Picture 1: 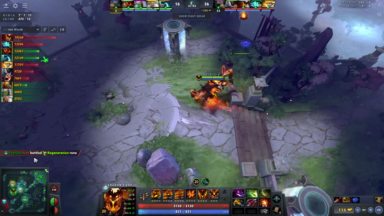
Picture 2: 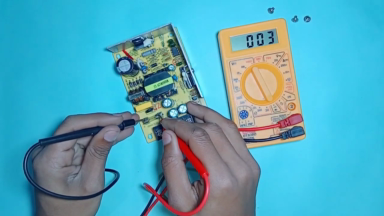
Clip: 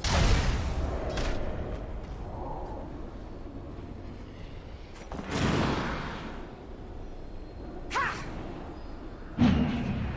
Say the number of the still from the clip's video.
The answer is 1